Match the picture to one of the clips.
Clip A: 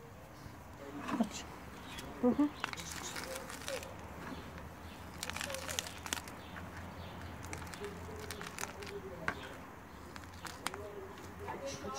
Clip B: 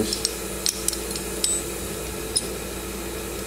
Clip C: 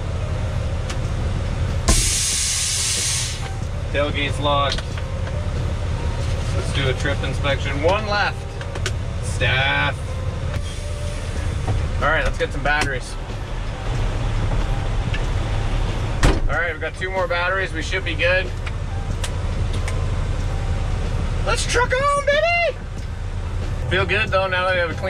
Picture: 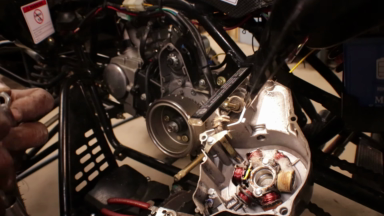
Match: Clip B